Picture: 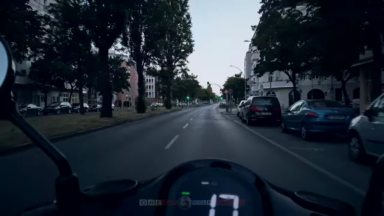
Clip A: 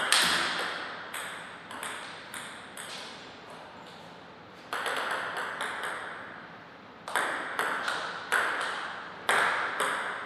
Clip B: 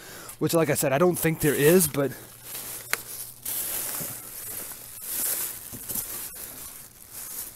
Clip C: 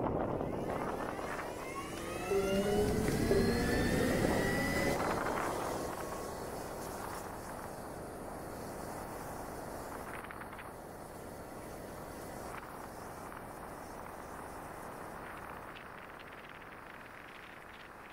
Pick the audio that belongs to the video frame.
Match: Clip C